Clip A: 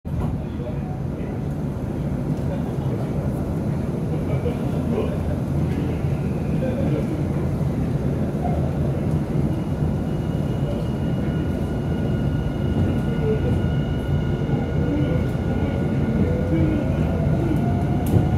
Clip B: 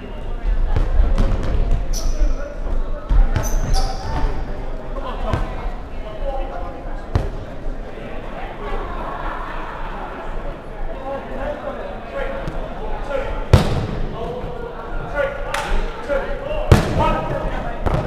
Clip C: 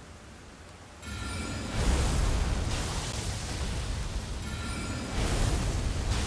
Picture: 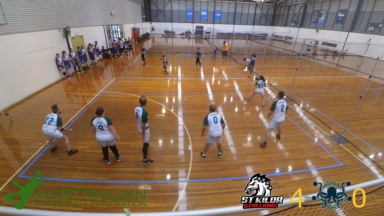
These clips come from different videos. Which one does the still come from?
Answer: B